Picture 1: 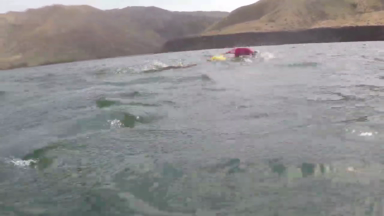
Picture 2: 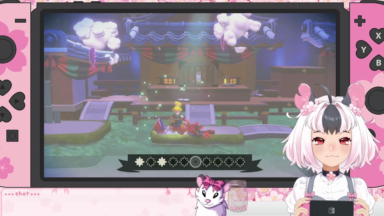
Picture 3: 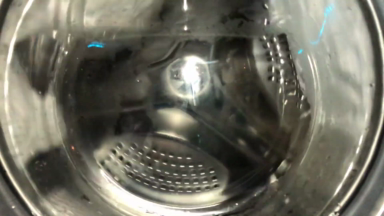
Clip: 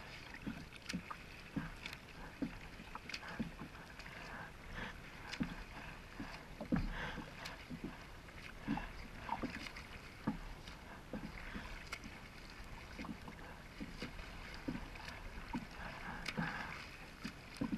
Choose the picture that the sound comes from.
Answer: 1